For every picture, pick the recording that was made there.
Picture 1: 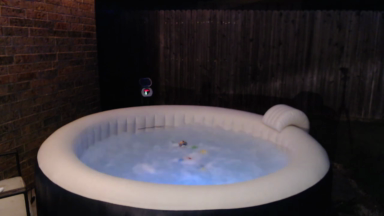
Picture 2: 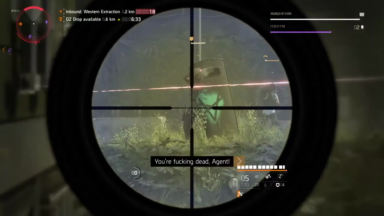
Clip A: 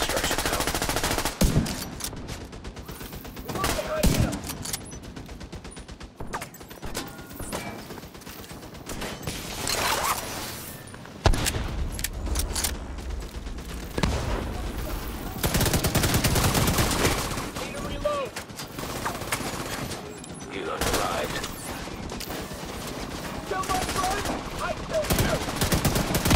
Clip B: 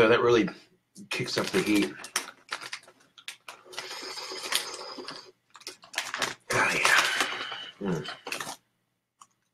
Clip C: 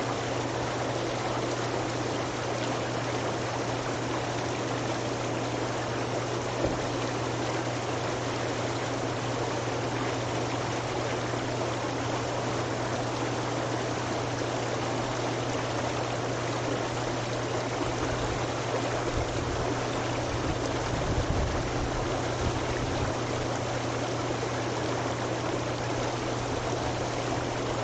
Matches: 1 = C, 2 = A